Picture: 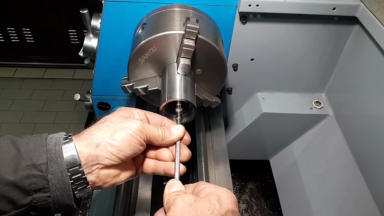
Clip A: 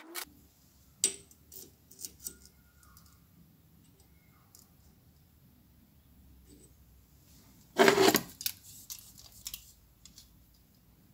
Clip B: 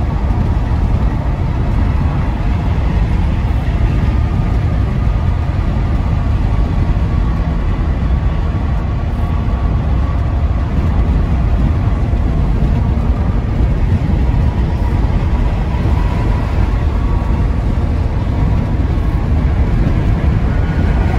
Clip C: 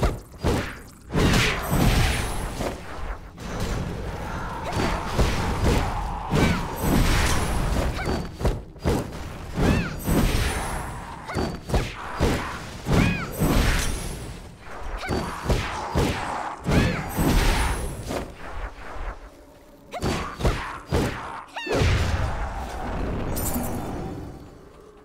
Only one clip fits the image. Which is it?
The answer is A